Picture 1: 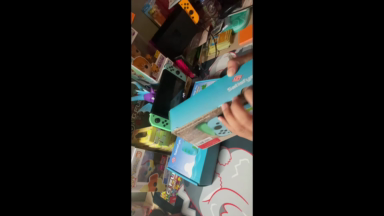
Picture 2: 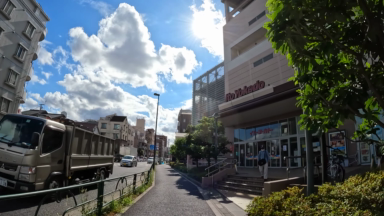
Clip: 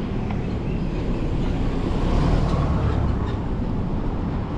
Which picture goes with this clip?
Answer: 2